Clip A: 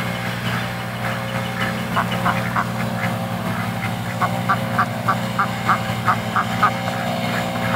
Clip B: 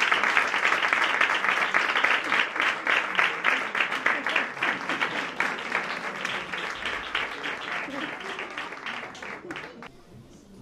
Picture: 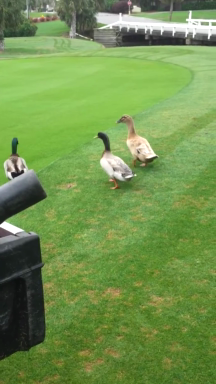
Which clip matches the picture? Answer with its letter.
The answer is A